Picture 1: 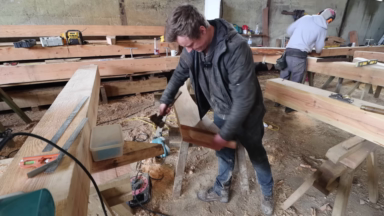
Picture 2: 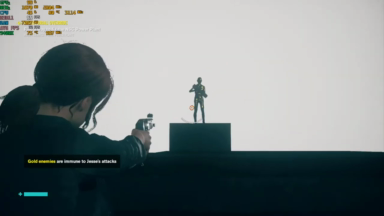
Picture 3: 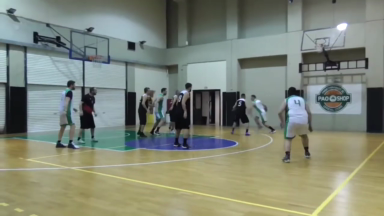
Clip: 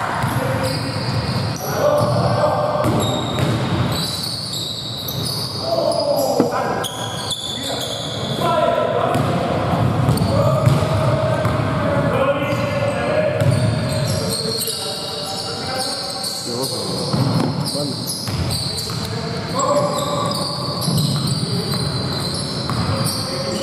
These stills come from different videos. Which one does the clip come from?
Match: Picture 3